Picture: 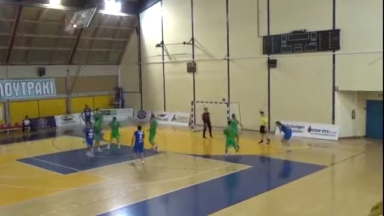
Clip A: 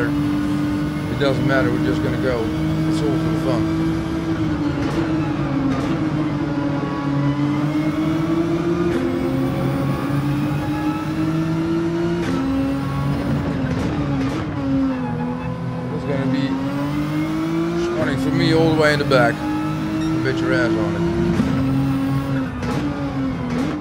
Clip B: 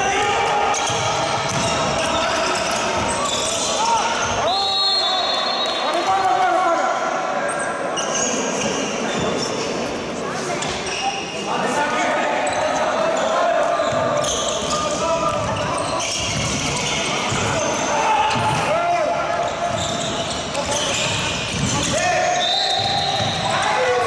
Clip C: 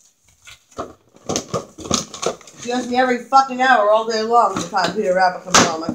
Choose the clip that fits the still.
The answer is B